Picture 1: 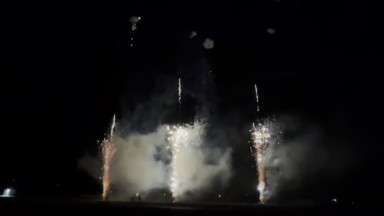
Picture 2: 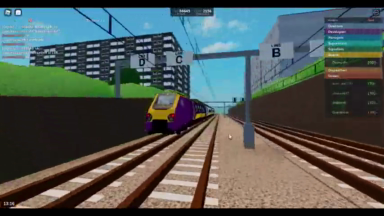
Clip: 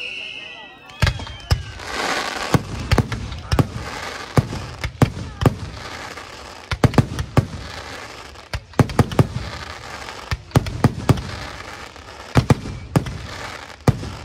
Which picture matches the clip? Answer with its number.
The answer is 1